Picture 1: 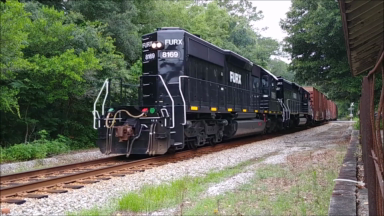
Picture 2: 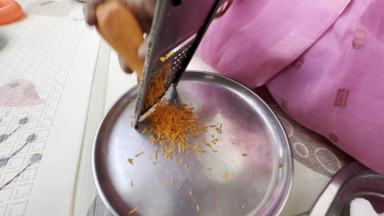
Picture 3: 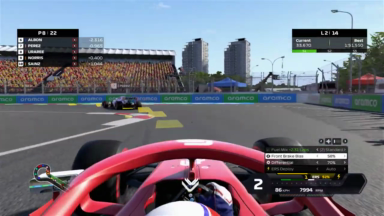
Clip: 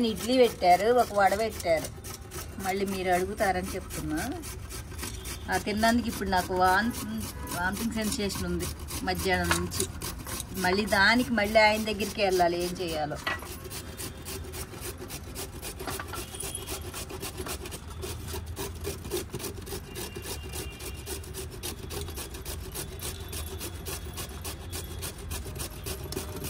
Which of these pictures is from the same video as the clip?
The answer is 2